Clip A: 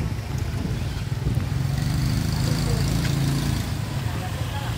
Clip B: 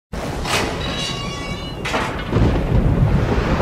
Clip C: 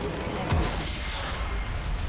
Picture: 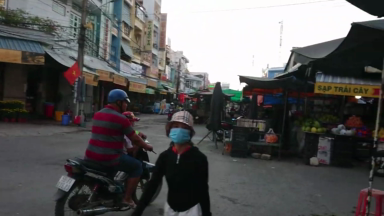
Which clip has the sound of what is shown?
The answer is A